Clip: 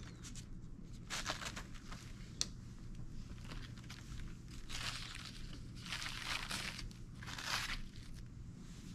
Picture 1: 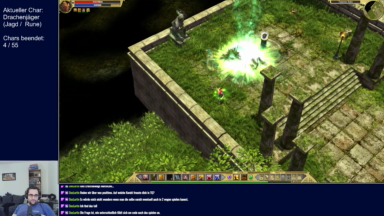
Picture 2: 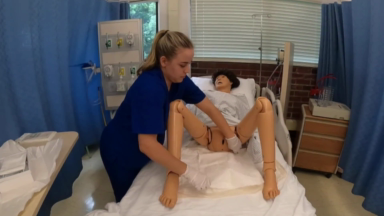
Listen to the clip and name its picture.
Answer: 2